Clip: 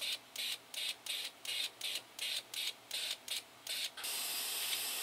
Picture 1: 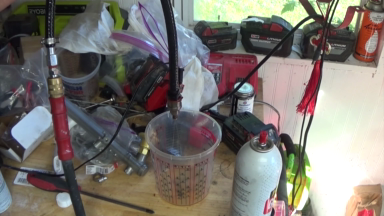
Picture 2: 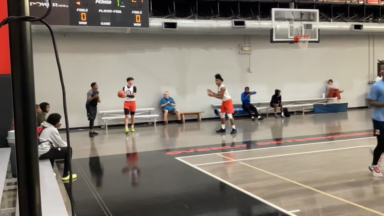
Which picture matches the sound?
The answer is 1